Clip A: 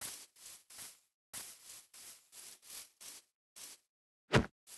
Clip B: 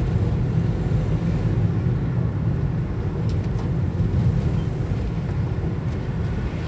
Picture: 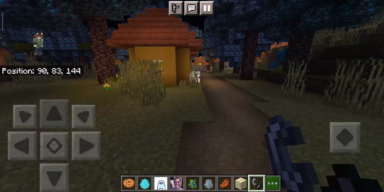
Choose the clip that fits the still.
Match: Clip A